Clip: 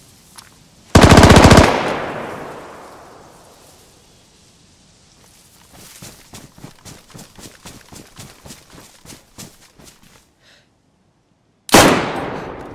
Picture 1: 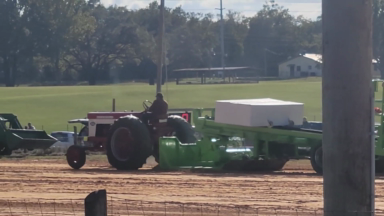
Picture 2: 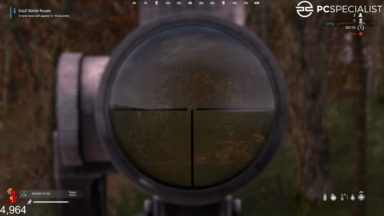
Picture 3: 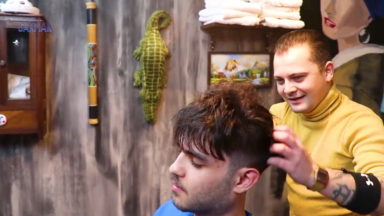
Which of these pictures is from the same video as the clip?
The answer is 2